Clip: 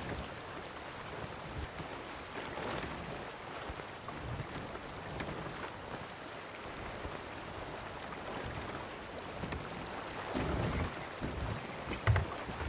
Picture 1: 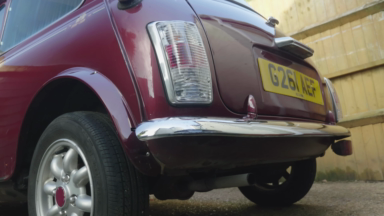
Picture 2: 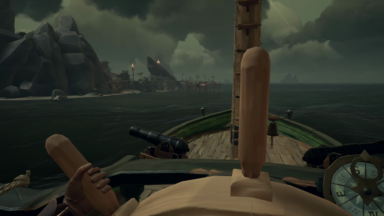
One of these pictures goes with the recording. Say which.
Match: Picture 2